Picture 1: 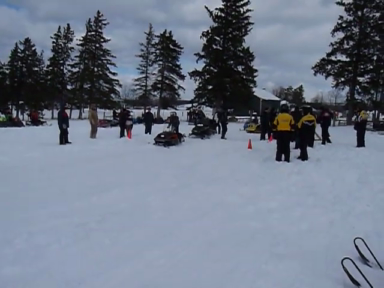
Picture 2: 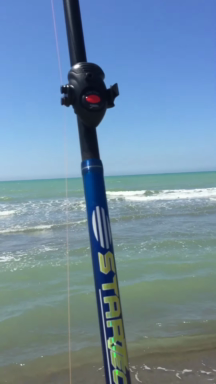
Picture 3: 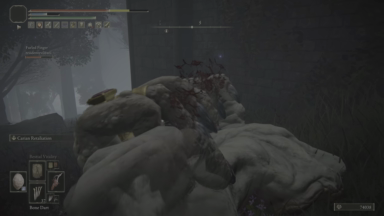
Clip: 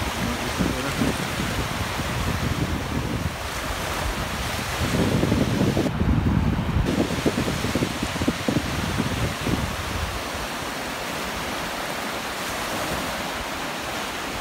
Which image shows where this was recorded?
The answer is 2